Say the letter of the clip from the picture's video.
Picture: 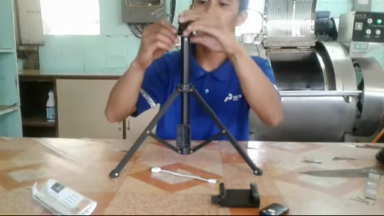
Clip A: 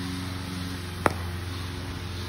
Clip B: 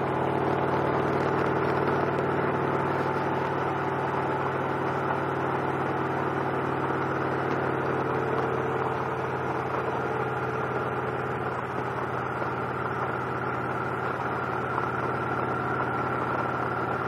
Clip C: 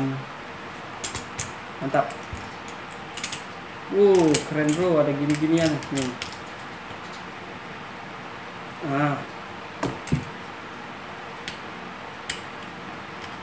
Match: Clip C